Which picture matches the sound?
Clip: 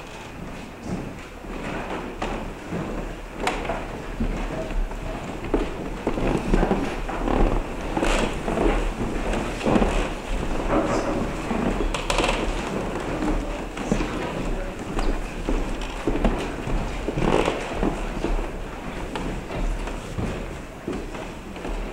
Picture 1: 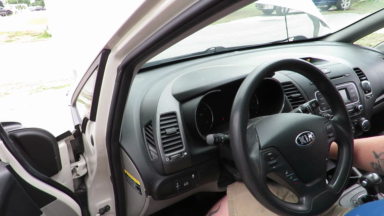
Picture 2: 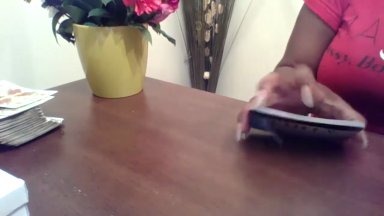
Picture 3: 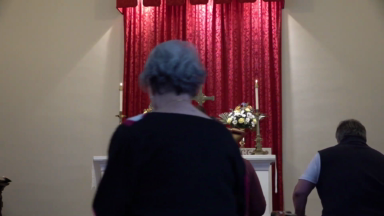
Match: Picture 3